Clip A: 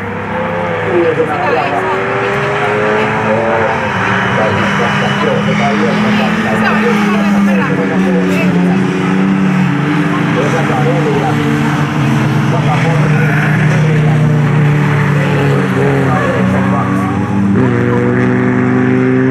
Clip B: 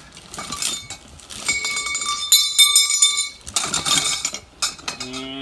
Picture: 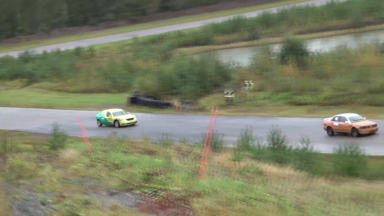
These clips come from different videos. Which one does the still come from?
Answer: A